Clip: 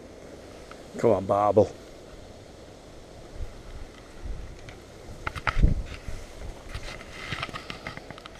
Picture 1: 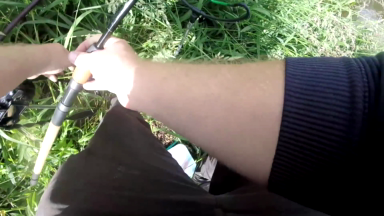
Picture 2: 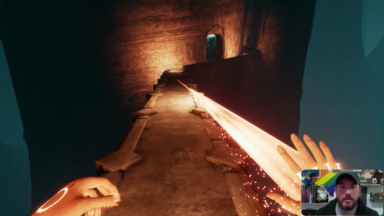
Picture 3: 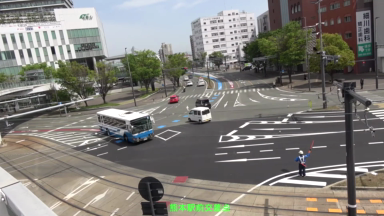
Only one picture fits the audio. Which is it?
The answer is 1